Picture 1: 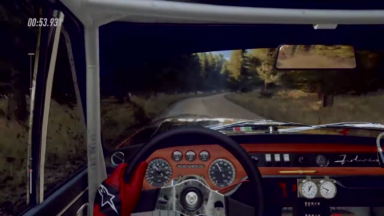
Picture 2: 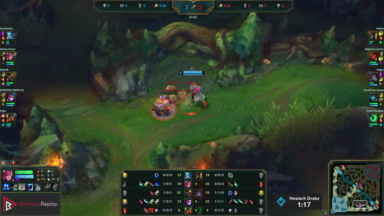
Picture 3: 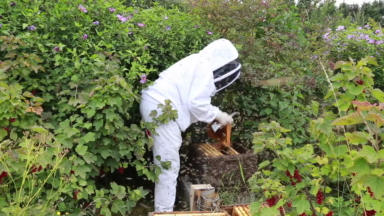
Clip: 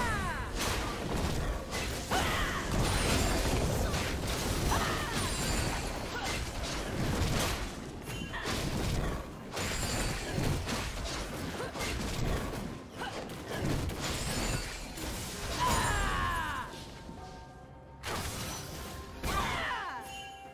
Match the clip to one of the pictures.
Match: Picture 2